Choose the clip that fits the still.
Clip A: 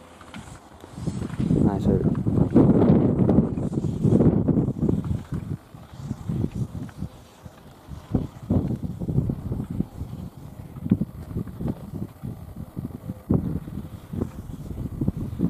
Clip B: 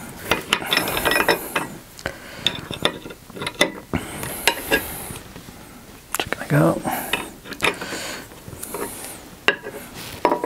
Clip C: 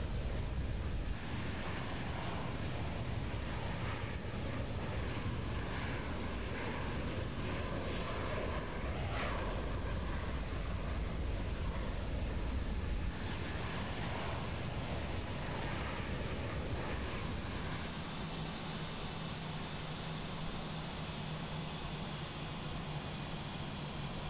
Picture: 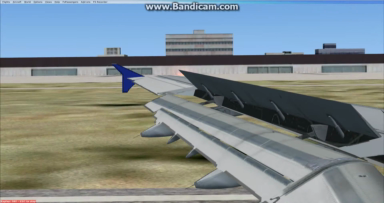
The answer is C